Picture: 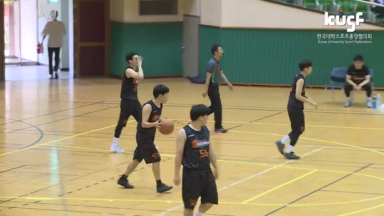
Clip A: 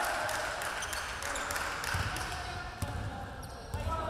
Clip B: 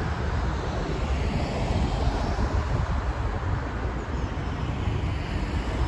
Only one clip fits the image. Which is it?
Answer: A